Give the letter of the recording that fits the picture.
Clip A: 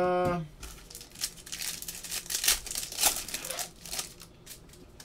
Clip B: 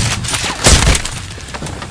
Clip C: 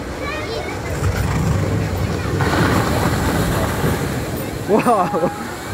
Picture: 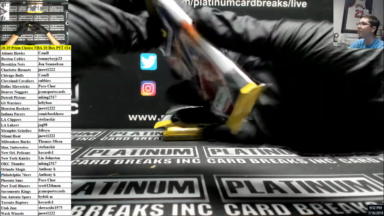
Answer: A